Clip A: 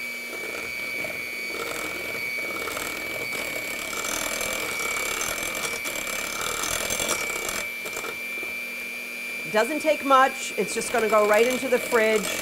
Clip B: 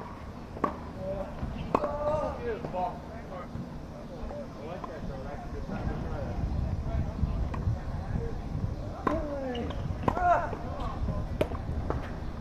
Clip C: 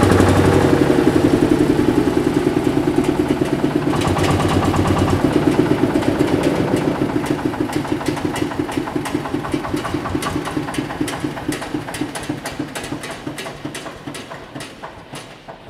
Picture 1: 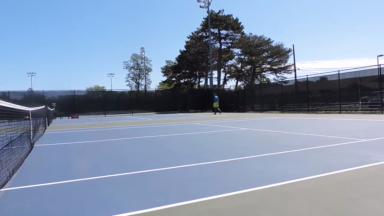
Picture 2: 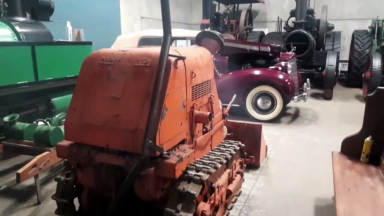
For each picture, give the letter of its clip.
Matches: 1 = B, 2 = C